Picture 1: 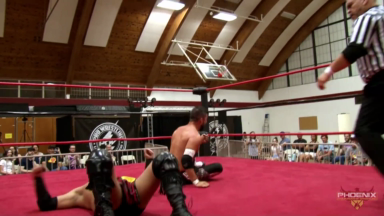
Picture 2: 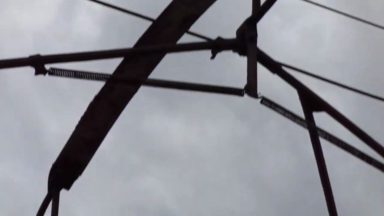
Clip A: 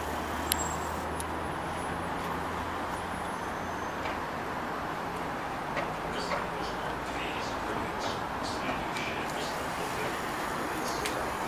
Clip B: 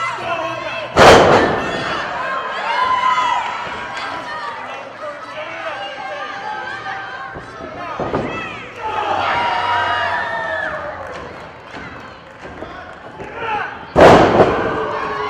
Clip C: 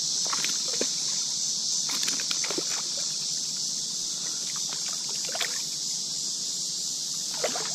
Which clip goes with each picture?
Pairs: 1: B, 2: A